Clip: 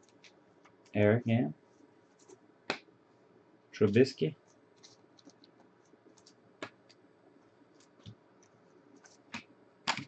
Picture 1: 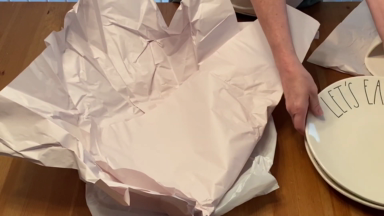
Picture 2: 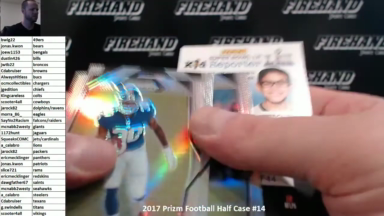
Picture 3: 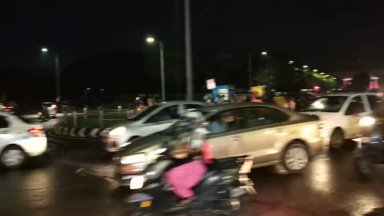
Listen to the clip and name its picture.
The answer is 2